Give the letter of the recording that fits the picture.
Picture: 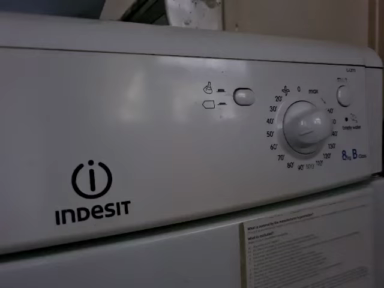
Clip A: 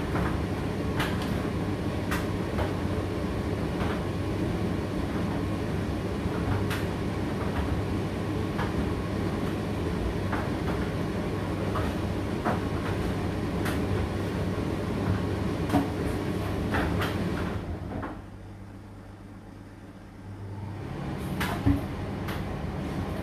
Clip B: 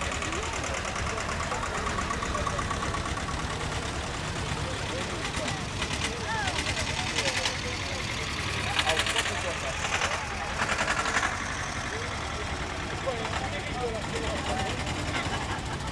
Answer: A